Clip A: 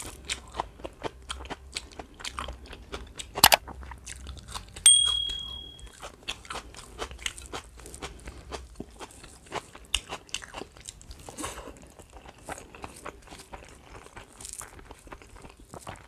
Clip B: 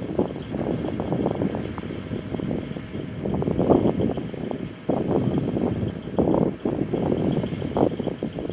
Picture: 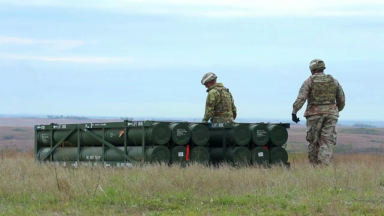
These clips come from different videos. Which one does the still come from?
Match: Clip B